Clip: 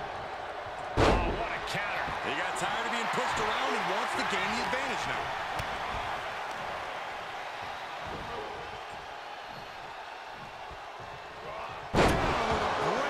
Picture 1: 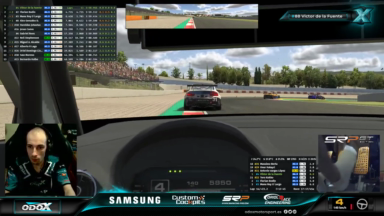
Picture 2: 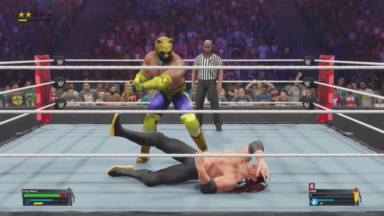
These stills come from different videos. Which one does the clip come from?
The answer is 2